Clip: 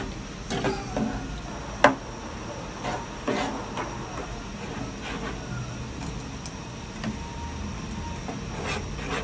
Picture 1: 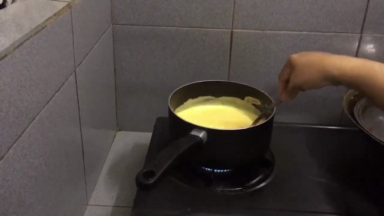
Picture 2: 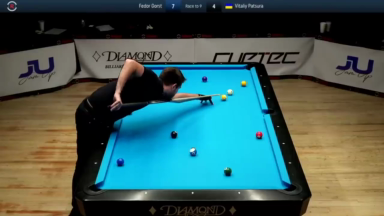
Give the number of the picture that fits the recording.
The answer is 1